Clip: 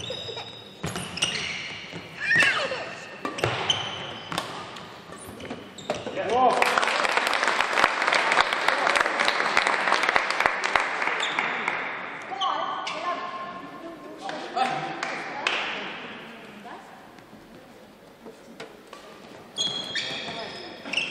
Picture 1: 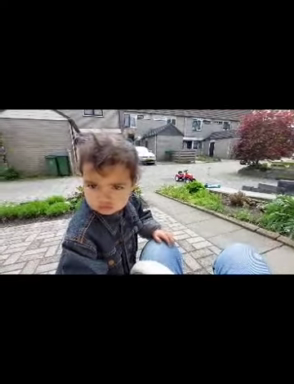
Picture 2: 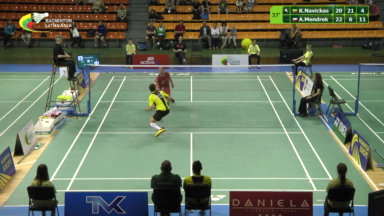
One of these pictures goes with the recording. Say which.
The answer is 2